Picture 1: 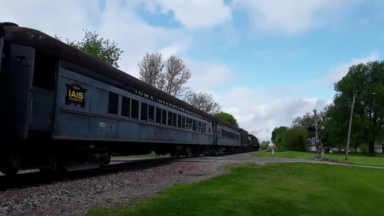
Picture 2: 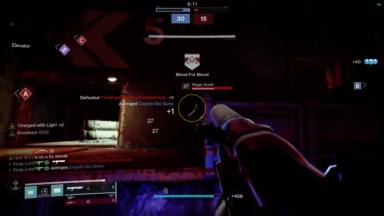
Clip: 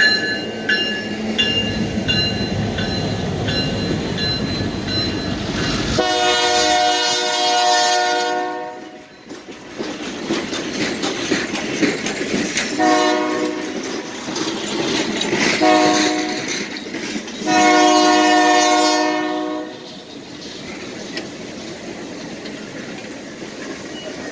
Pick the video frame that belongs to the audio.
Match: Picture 1